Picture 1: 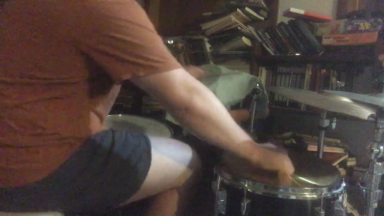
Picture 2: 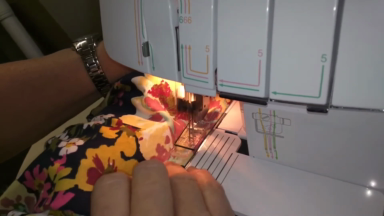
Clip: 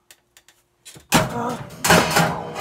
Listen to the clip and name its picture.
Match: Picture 1